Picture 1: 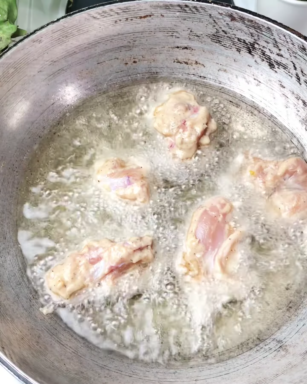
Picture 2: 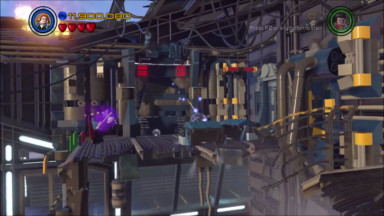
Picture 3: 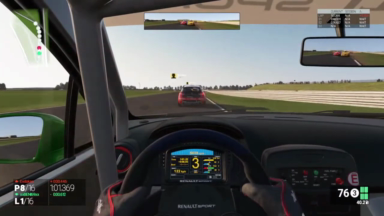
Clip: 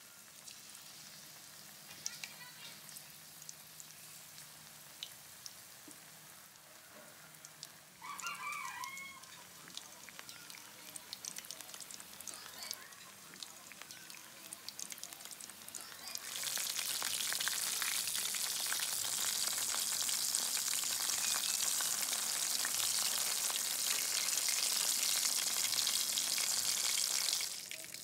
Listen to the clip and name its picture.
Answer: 1